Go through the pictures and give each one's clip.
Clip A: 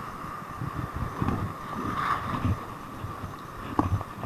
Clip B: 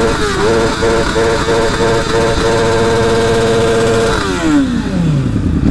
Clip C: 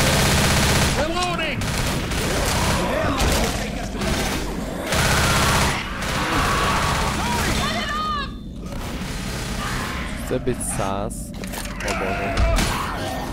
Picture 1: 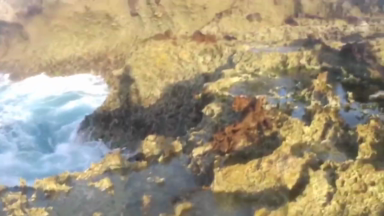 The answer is A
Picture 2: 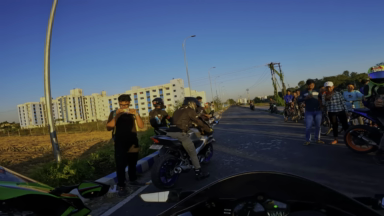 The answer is B